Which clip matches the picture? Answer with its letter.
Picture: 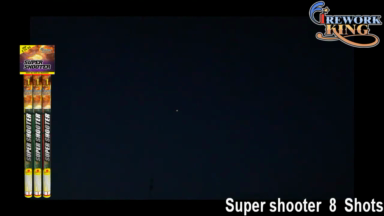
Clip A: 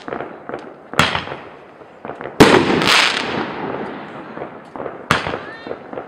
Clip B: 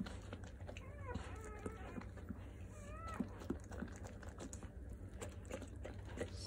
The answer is A